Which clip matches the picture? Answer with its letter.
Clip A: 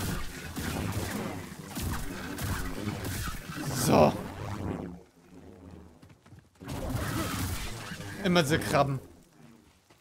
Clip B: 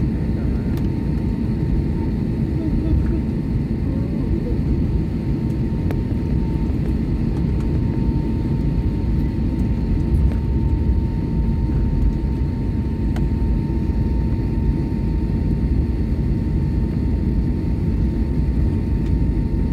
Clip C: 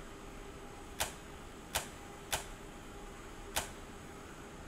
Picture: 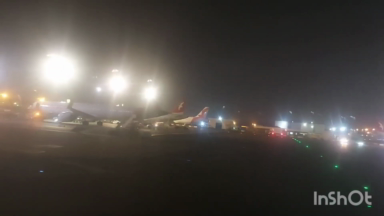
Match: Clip B